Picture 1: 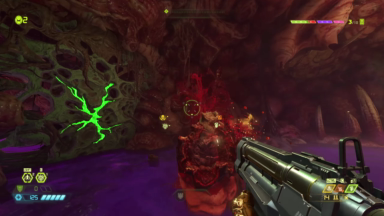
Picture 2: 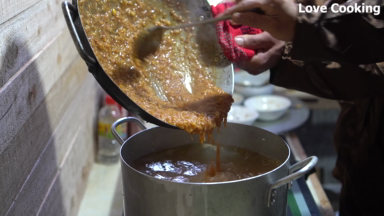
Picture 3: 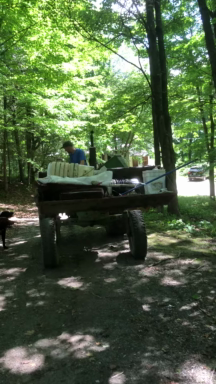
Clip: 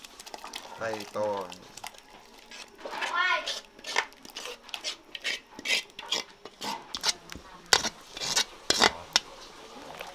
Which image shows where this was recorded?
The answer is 2